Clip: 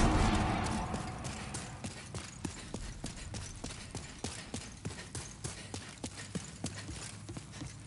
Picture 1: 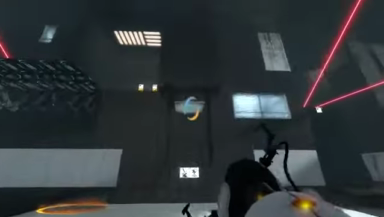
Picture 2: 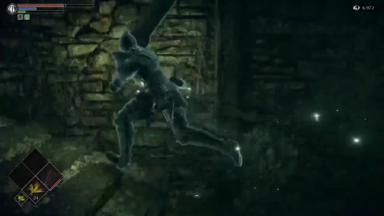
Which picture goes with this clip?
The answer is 2